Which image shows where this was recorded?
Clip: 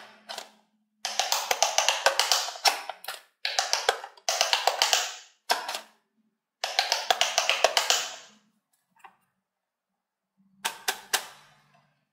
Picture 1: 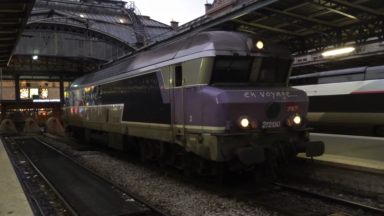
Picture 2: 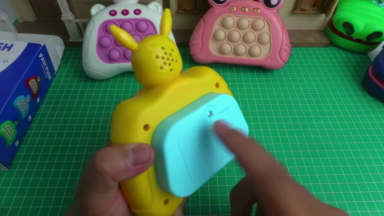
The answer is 2